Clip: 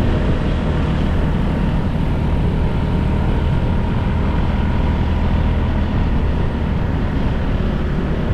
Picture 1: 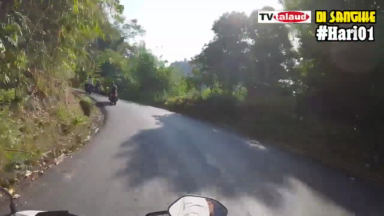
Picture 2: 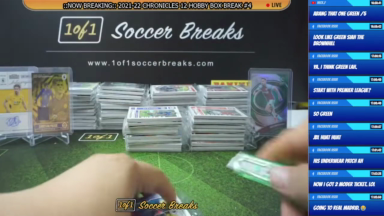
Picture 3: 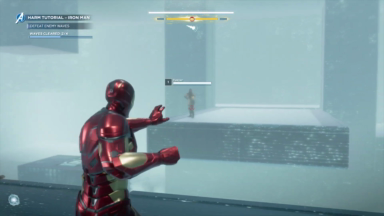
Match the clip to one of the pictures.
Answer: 1